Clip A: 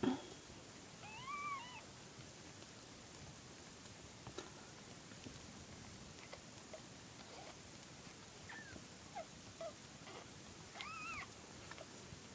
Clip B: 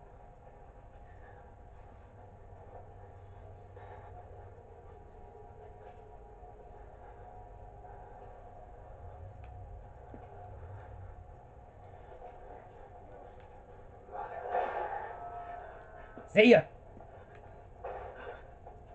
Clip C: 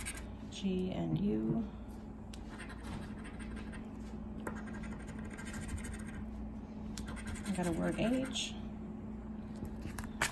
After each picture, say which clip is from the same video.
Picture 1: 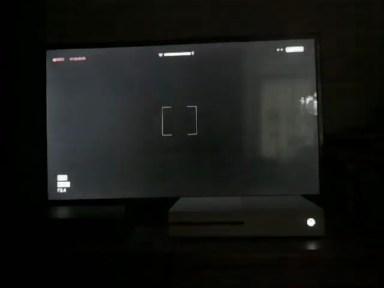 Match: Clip B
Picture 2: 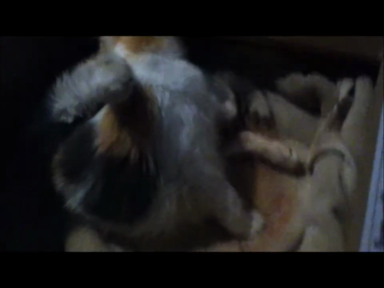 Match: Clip A